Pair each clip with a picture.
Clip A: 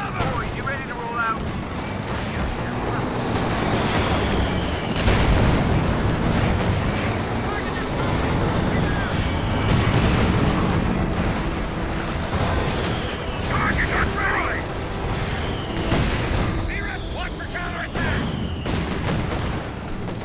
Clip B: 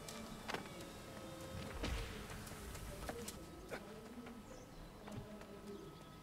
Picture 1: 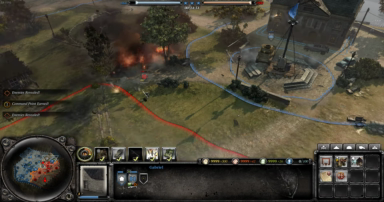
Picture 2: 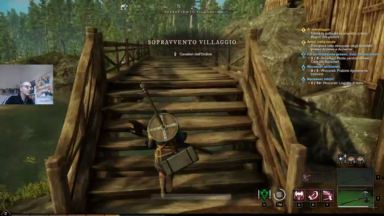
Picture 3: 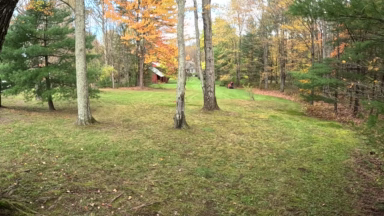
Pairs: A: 1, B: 2